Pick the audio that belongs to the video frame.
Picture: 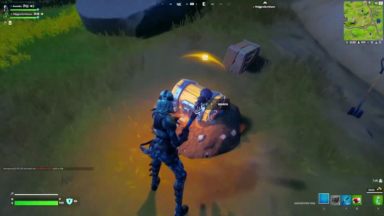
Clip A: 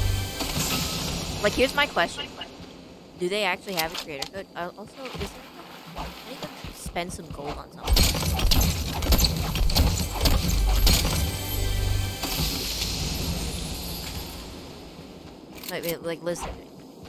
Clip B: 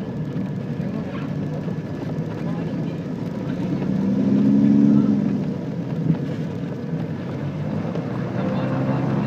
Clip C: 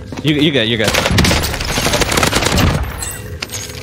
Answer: A